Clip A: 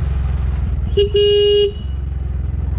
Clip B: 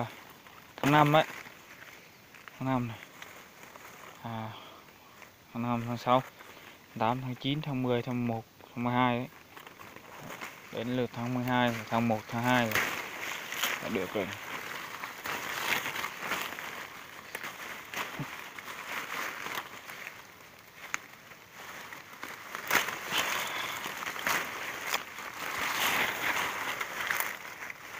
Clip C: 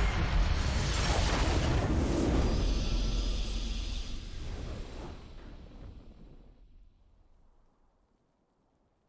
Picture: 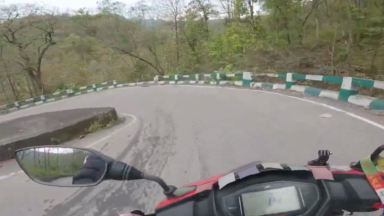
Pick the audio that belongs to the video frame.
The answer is A